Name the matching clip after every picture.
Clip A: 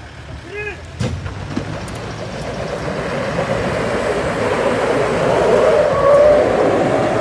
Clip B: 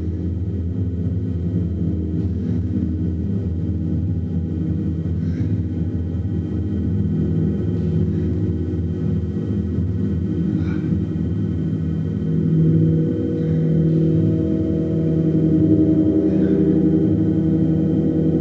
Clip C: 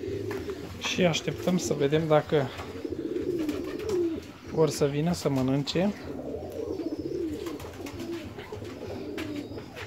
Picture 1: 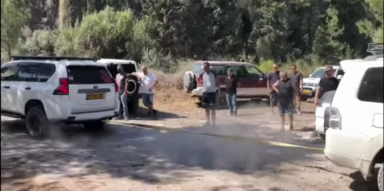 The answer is A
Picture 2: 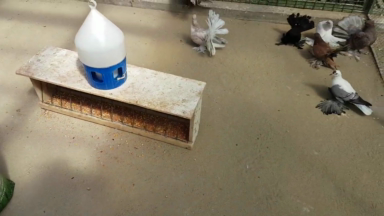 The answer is C